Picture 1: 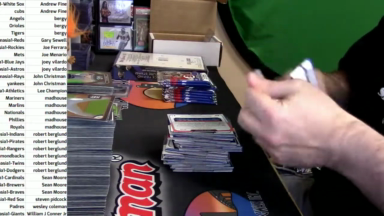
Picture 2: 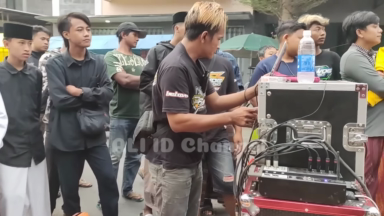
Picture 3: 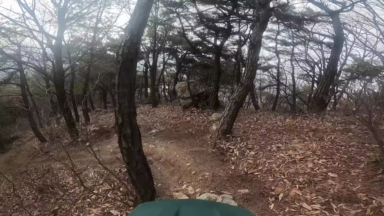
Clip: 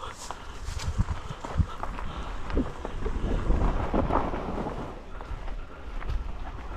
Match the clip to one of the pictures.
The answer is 3